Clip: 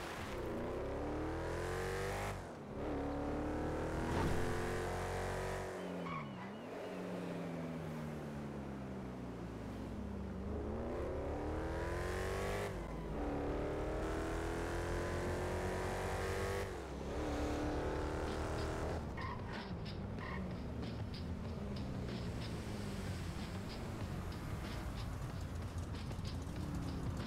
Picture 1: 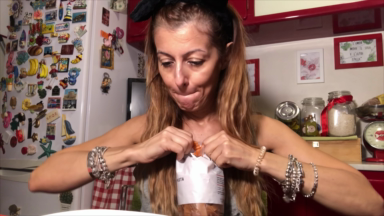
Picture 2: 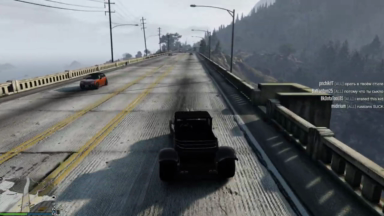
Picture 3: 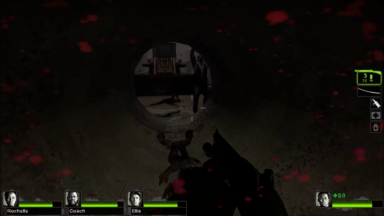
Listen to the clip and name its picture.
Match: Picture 2